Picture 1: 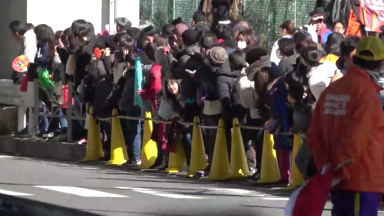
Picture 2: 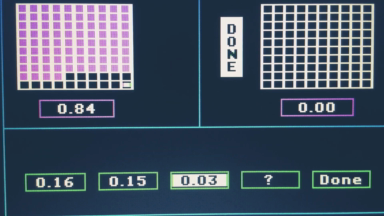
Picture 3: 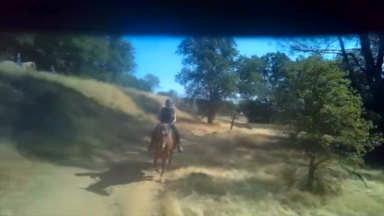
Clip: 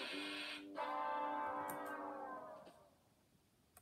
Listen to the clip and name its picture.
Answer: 2